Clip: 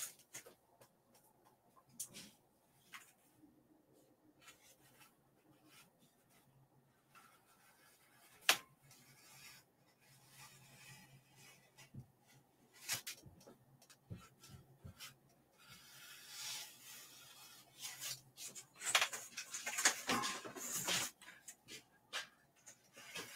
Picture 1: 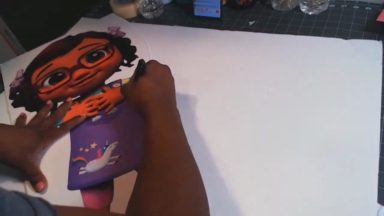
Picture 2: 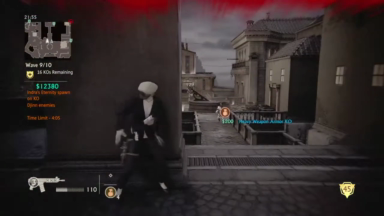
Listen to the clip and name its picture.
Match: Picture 1